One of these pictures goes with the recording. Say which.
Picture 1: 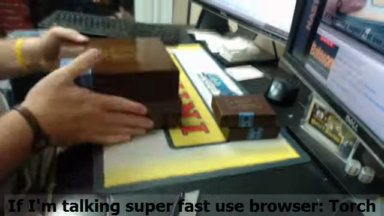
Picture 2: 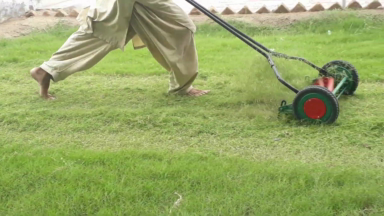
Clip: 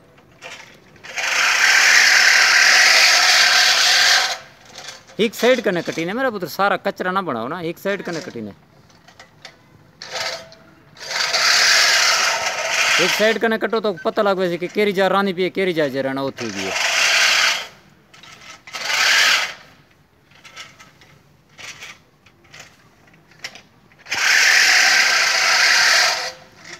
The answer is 2